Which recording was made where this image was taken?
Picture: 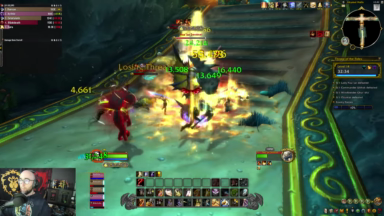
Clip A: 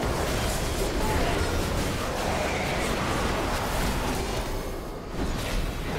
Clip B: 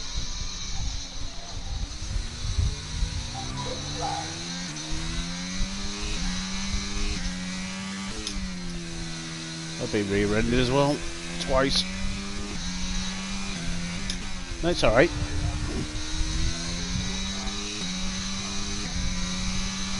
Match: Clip A